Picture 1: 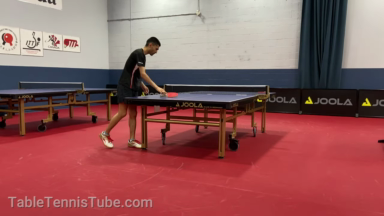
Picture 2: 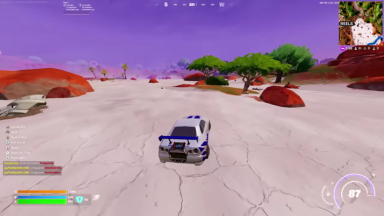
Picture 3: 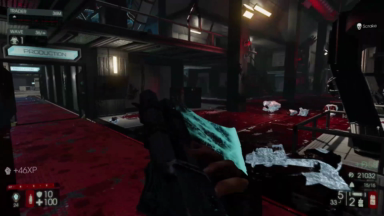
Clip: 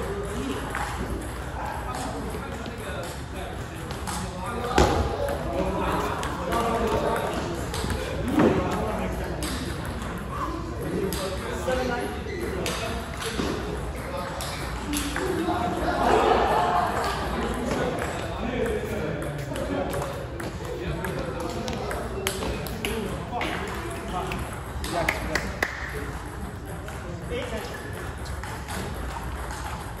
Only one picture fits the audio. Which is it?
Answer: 1